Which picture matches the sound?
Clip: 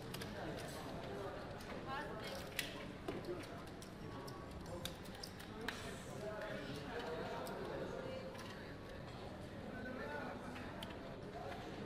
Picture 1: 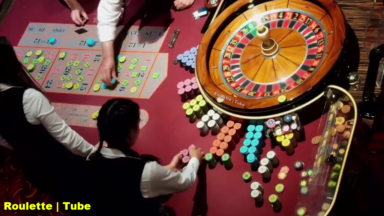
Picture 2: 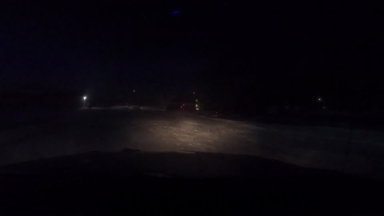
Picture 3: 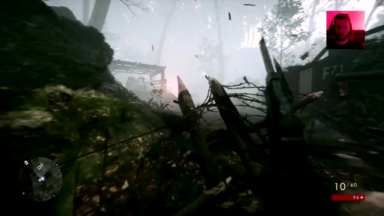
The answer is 1